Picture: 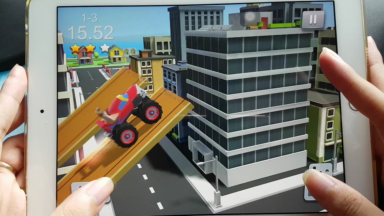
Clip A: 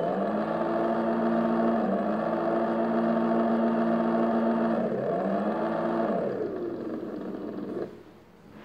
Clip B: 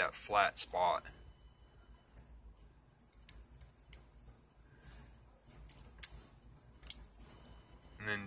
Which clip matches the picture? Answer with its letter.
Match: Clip A